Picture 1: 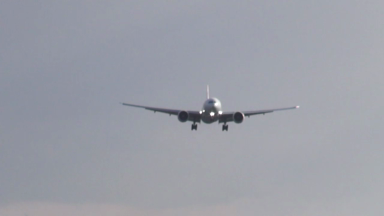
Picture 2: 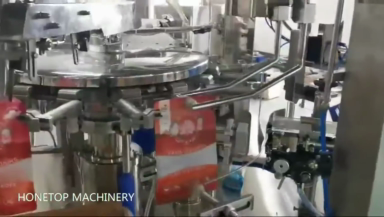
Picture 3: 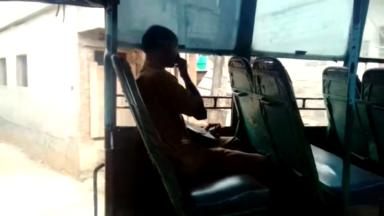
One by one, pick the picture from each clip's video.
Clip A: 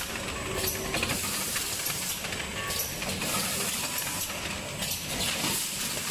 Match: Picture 2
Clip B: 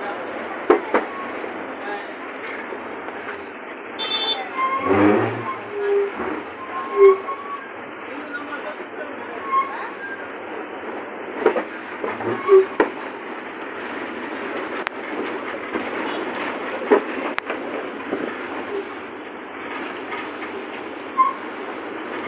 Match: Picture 3